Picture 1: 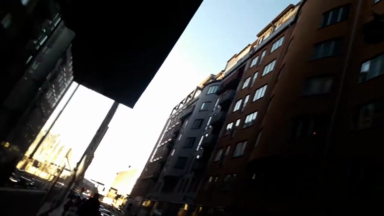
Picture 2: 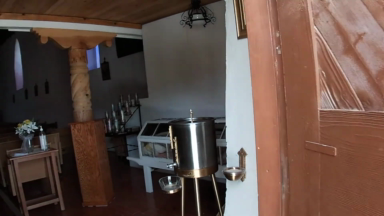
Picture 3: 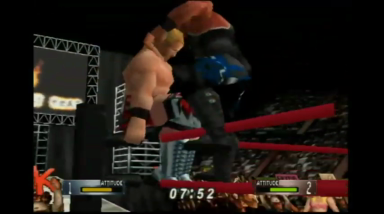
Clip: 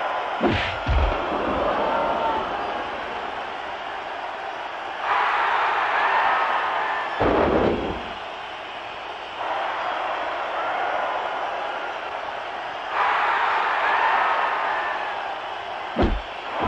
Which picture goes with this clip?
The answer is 3